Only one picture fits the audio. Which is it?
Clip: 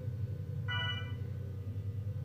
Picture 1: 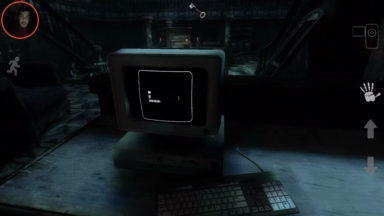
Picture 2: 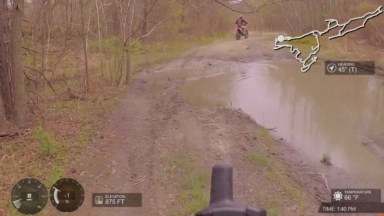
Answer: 1